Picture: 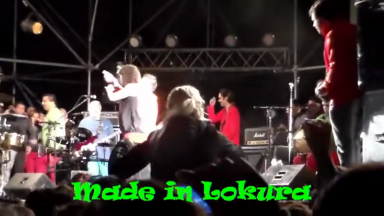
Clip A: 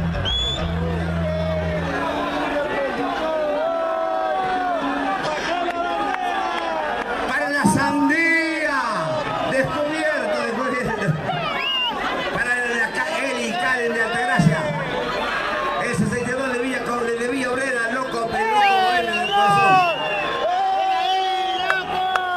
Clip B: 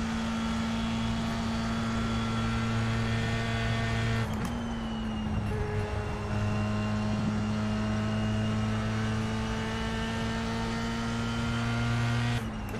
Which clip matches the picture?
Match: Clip A